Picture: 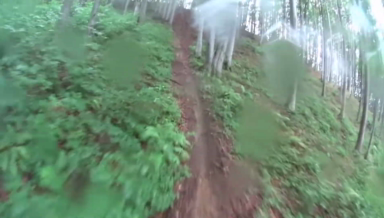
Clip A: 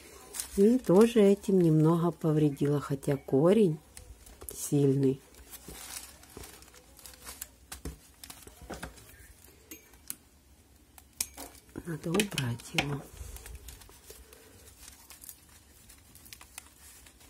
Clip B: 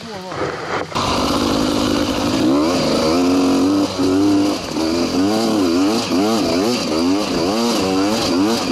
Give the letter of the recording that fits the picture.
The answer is B